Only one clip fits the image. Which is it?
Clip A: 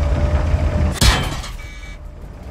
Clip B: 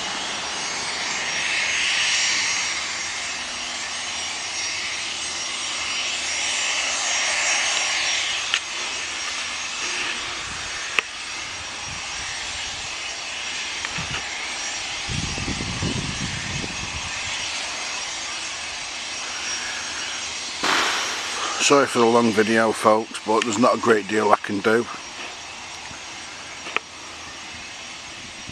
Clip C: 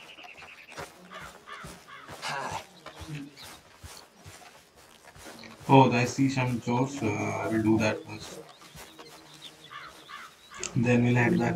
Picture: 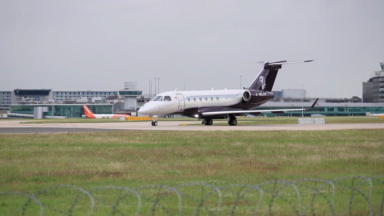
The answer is B